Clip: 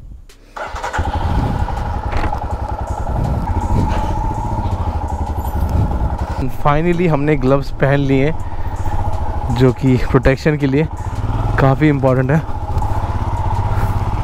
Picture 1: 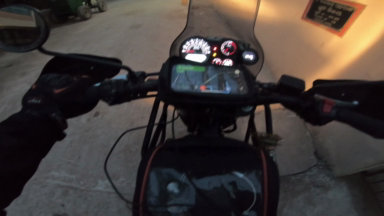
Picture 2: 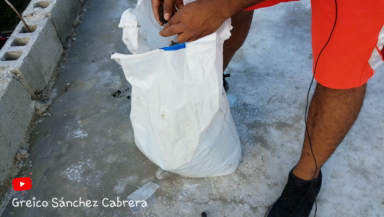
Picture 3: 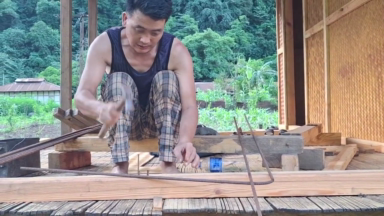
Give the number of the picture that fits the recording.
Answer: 1